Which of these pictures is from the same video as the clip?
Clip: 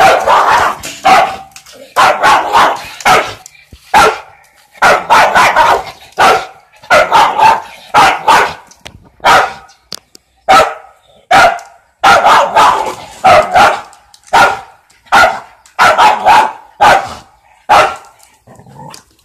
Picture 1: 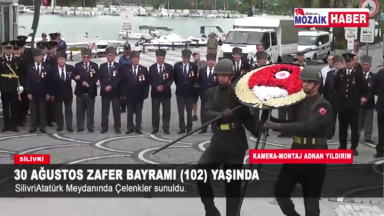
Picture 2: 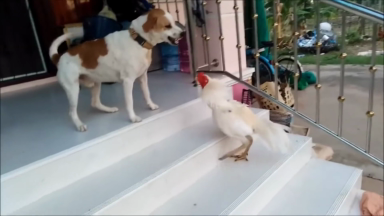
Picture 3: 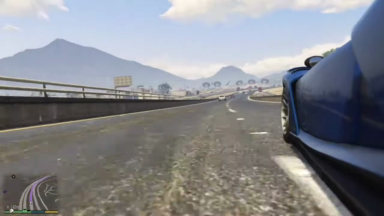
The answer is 2